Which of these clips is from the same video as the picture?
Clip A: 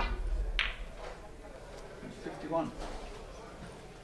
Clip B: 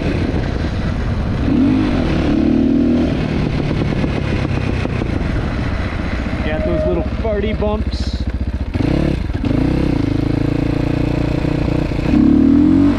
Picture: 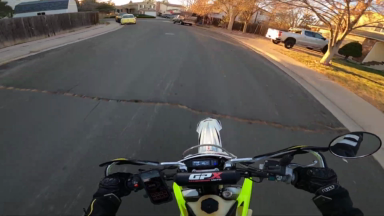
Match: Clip B